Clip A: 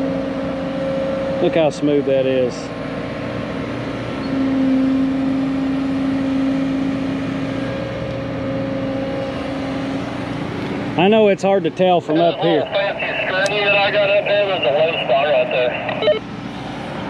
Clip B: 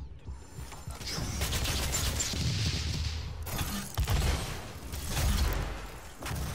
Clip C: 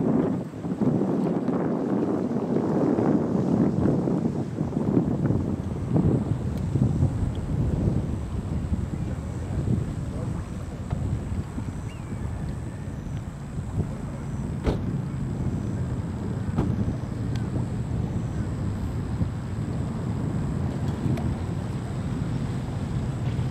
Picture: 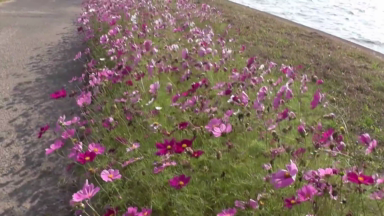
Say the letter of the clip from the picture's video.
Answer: C